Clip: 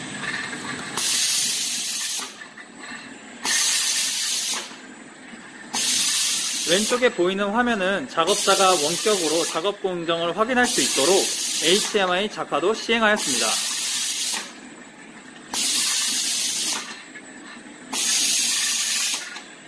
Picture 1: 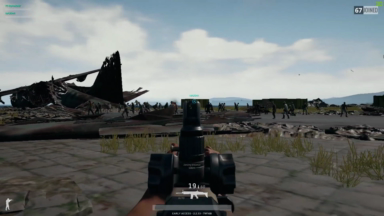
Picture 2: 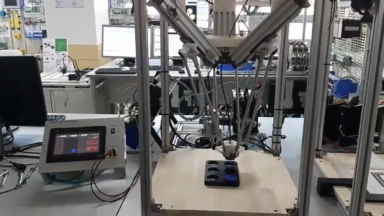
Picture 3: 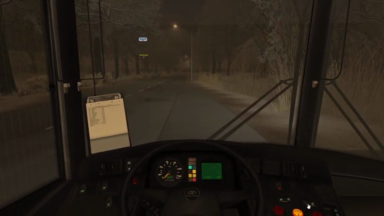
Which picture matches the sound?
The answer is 2